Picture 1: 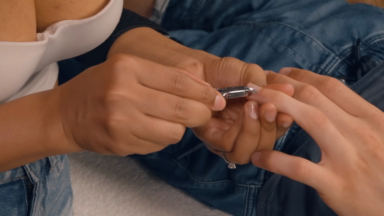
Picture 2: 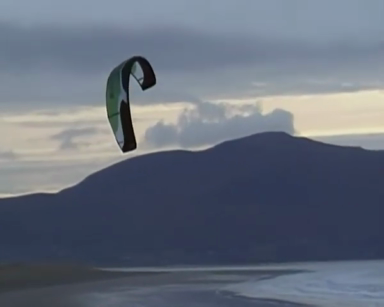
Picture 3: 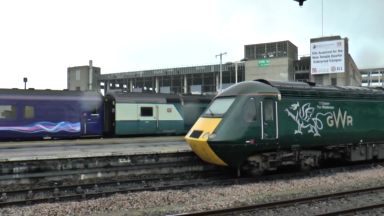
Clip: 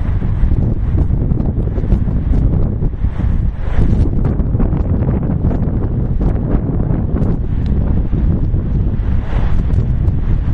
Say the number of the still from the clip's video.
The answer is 2